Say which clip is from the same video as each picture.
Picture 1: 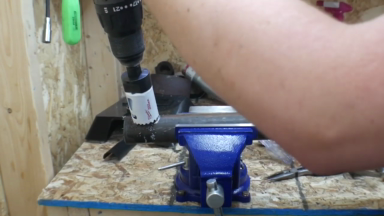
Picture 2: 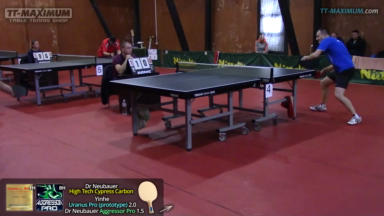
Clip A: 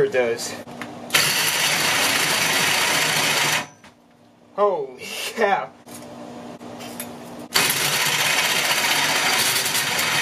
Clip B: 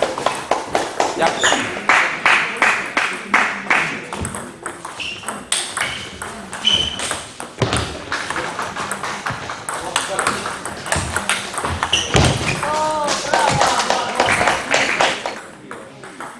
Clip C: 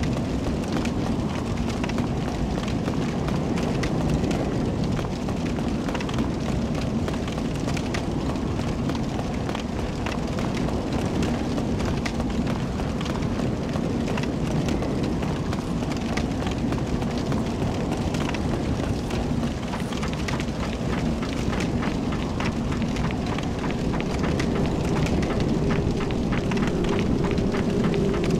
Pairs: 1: A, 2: B